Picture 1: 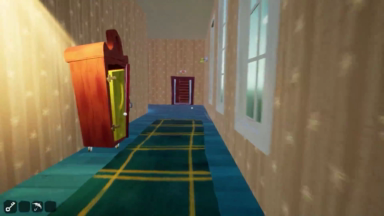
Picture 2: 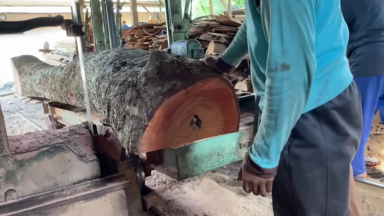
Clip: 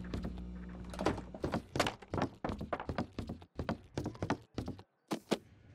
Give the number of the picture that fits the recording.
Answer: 1